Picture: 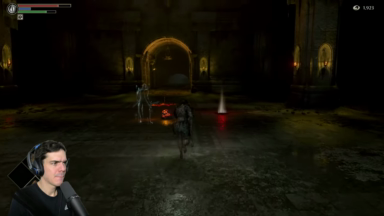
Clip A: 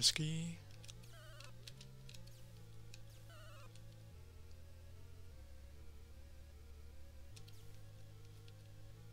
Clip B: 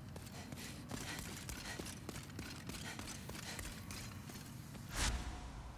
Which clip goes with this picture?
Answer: B